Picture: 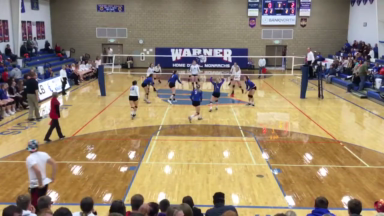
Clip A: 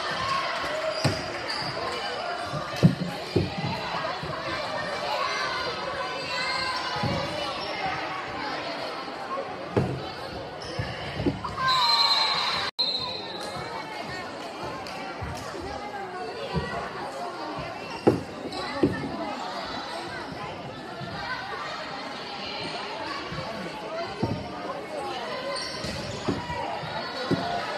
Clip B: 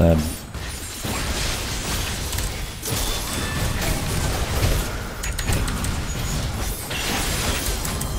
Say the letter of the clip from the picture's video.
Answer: A